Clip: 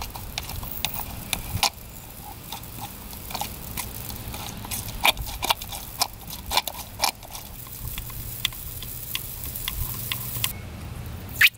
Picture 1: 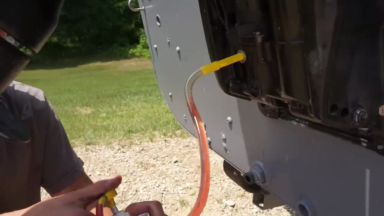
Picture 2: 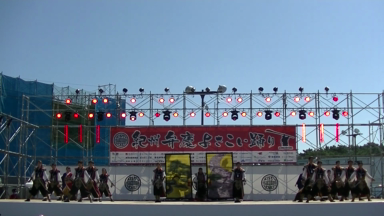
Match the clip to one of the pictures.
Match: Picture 1